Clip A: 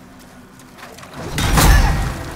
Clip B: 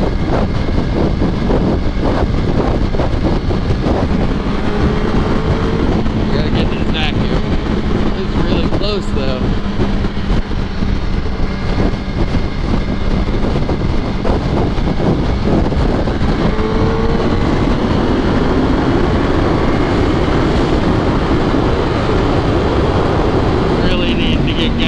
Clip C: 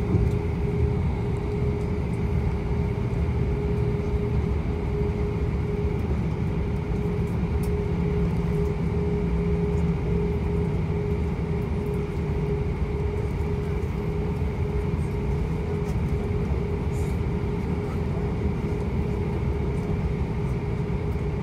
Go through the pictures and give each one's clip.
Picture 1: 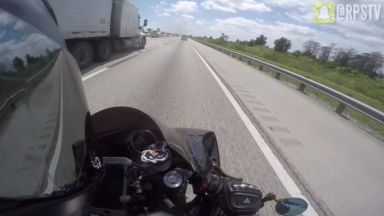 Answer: B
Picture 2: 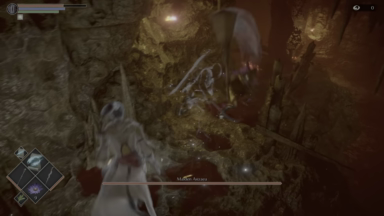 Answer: A